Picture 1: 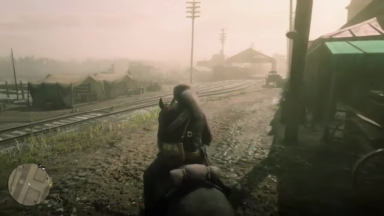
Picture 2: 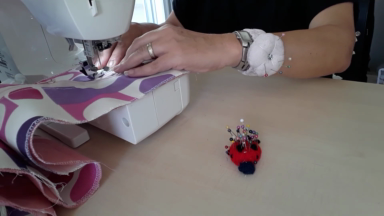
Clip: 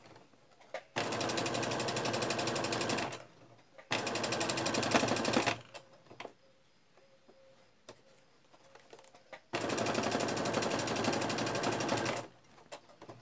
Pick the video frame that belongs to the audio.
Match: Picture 2